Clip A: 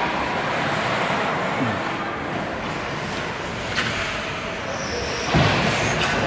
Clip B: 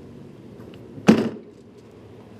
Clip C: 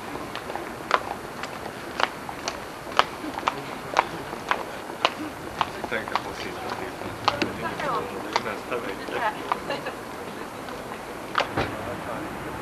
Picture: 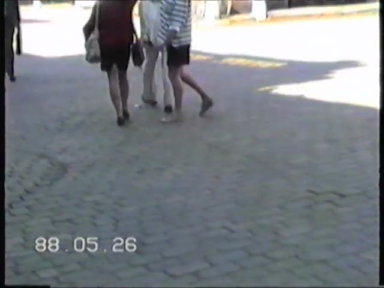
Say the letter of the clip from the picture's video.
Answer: C